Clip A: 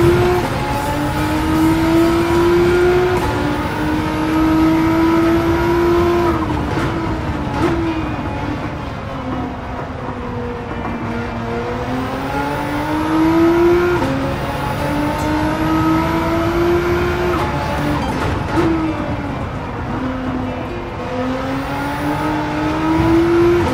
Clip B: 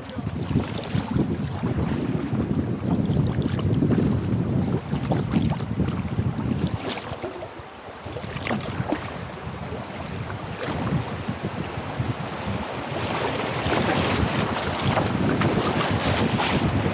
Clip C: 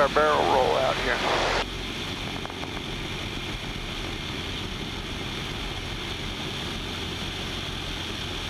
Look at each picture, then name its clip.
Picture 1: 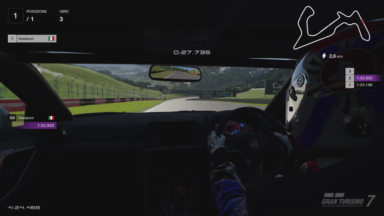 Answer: A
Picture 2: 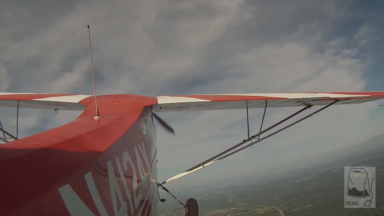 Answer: C